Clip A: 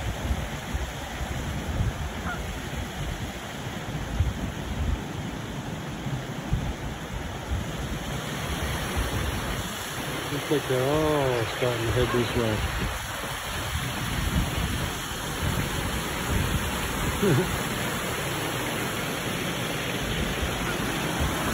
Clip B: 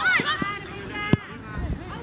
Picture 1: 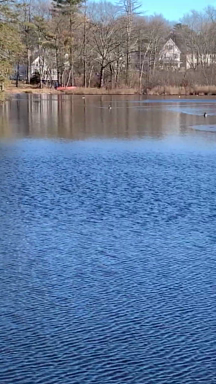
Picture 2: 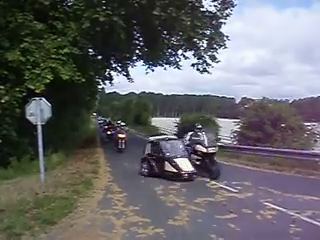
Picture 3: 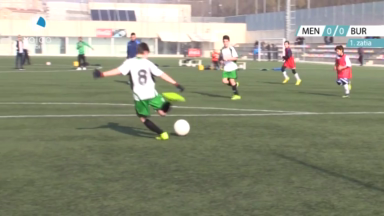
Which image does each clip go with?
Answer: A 1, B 3